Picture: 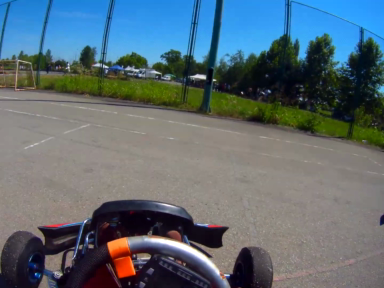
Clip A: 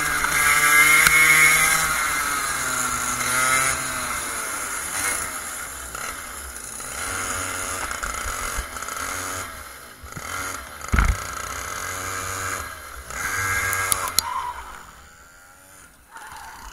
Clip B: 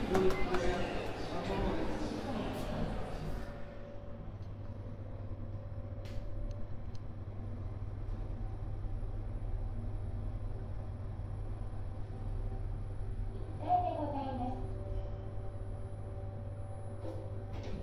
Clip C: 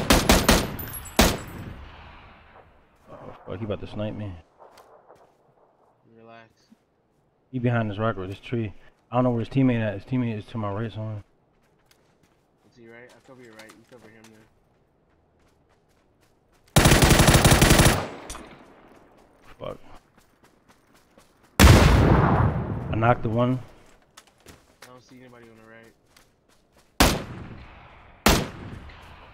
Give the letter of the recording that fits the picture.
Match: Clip A